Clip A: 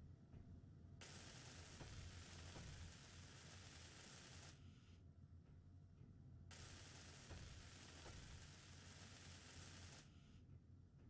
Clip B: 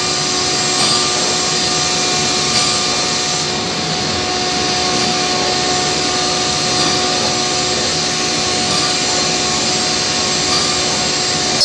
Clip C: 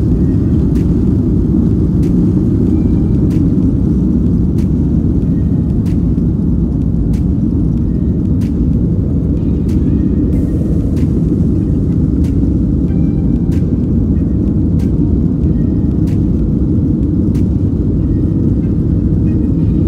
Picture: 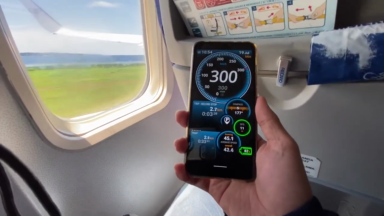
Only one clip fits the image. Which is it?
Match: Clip C